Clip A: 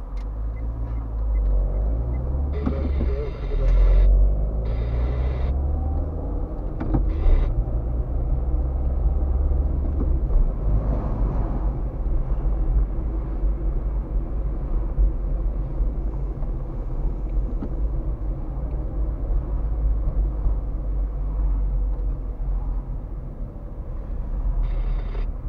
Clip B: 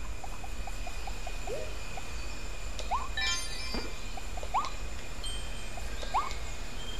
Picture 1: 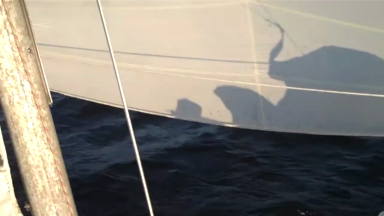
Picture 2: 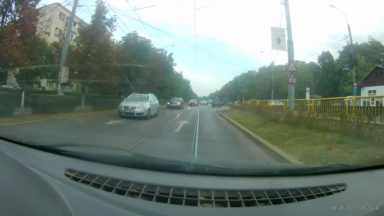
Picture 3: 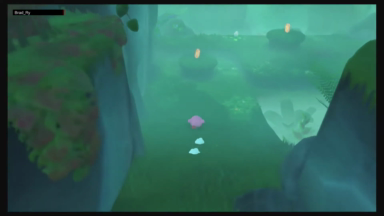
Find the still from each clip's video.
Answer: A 2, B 3